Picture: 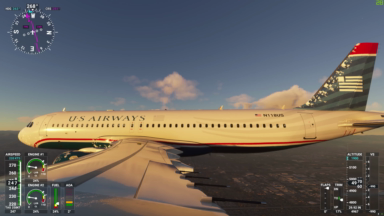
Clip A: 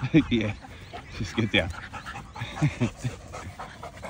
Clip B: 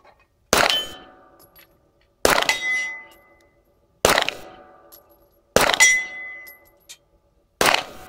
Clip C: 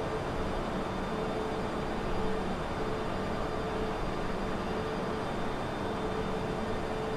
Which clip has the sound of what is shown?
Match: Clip C